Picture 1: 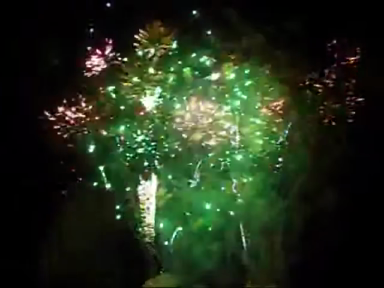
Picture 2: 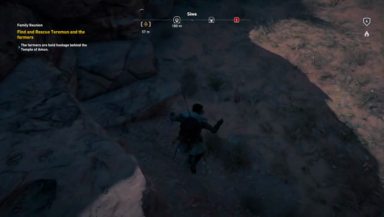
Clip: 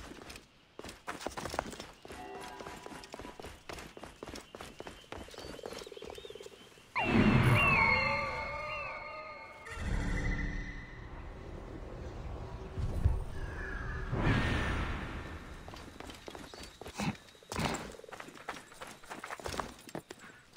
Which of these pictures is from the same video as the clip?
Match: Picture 2